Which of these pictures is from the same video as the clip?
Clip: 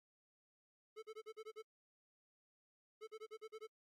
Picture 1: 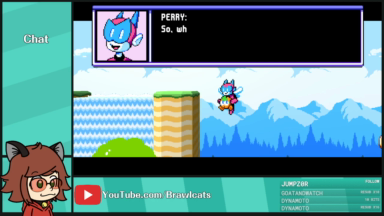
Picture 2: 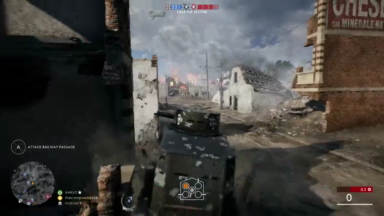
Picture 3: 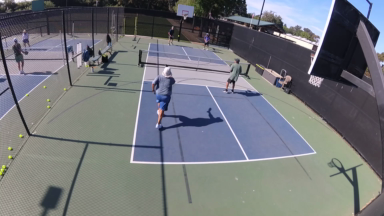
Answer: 1